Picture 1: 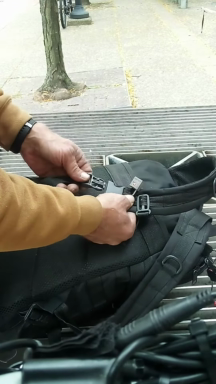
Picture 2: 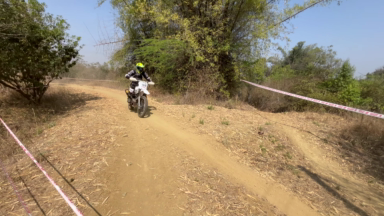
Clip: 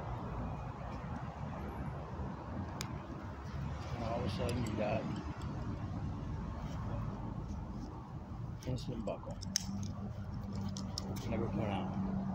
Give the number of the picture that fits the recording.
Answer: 1